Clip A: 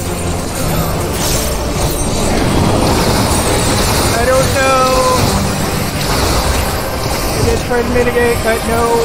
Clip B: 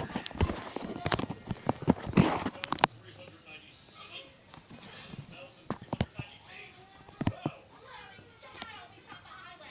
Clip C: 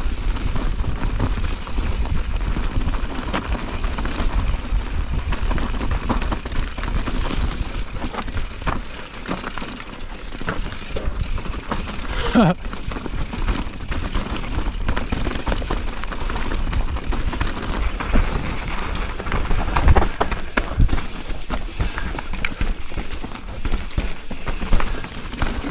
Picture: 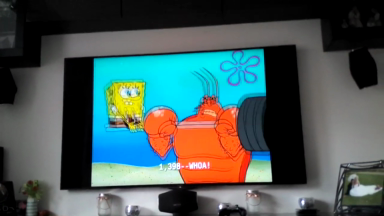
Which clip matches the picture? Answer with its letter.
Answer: B